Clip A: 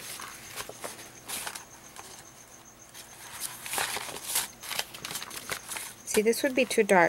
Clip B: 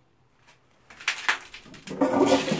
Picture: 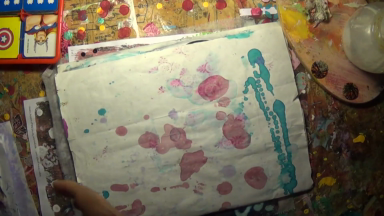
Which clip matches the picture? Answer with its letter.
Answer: A